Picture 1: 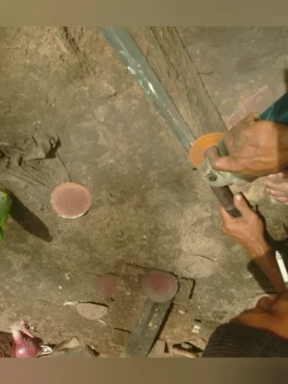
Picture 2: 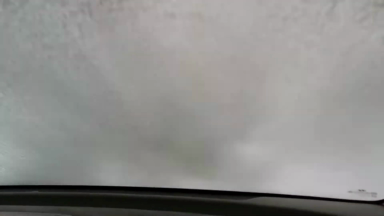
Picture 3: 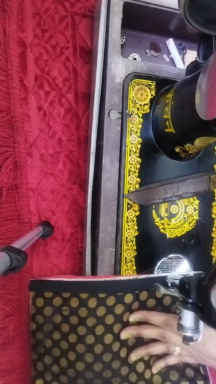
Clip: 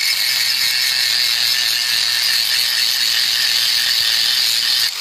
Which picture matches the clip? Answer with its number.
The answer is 1